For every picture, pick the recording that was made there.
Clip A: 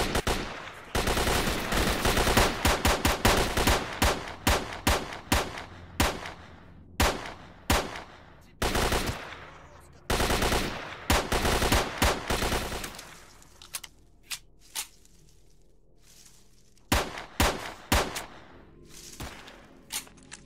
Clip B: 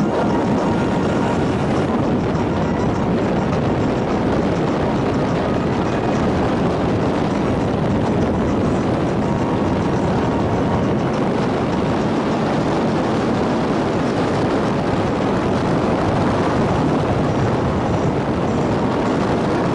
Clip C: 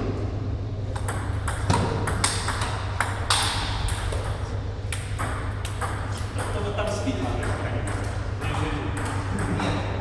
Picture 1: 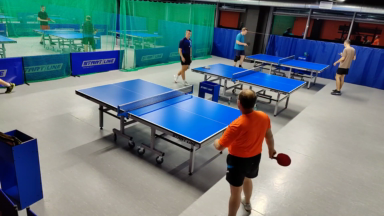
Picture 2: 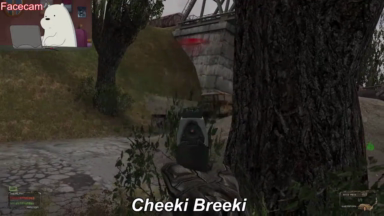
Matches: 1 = C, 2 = A